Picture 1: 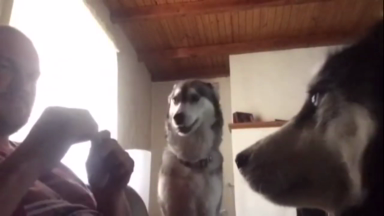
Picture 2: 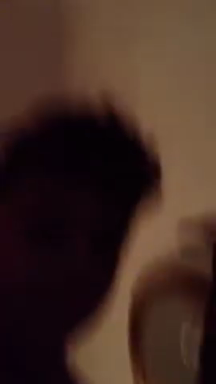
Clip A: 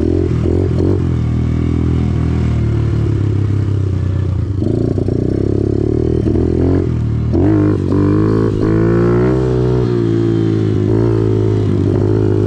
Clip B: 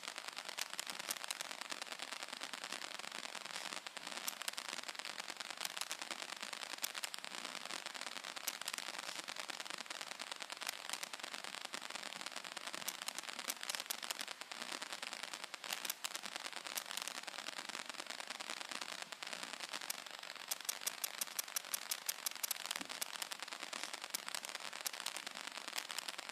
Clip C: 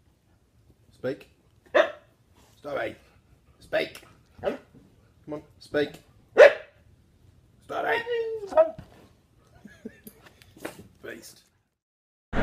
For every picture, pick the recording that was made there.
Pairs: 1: C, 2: B